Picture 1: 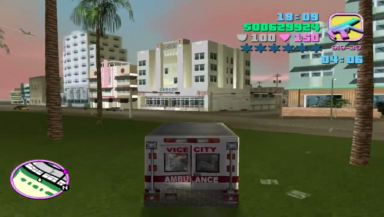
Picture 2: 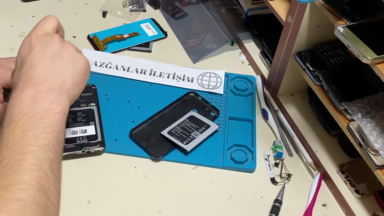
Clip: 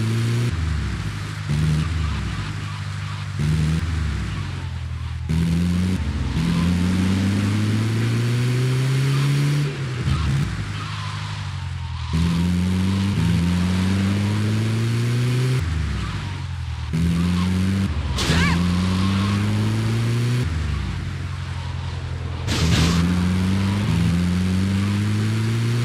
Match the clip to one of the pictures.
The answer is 1